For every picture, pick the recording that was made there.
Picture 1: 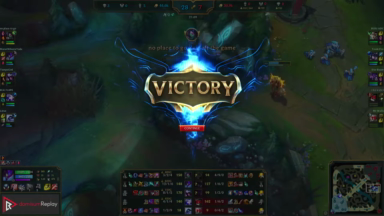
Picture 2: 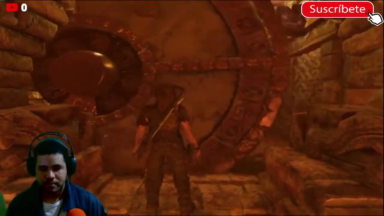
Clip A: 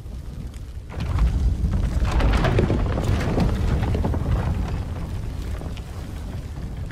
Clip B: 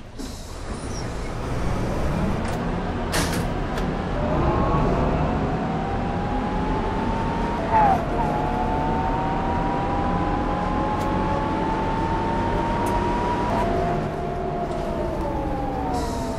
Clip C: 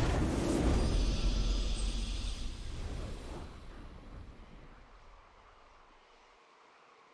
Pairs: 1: C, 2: A